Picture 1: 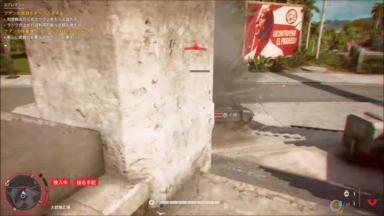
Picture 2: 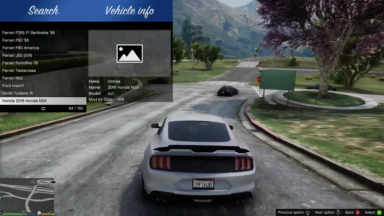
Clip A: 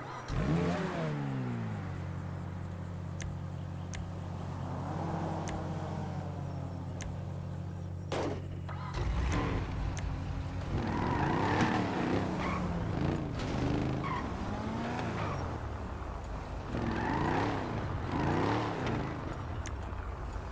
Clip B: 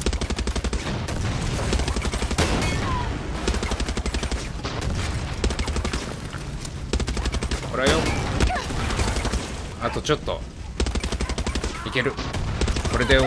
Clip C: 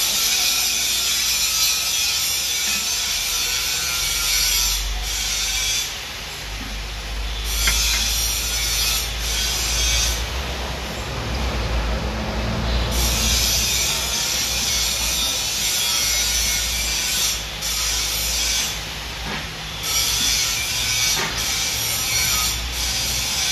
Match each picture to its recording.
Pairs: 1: B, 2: A